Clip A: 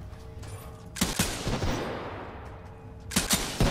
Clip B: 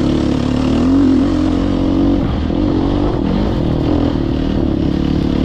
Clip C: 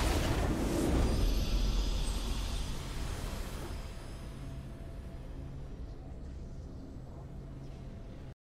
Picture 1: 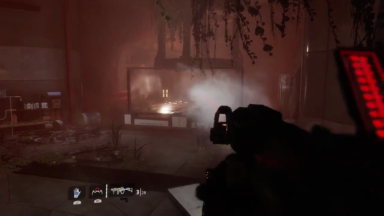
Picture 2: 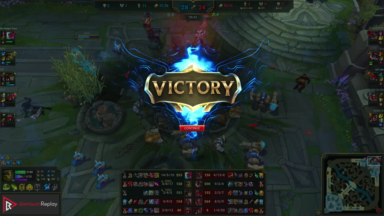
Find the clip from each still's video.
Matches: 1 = A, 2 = C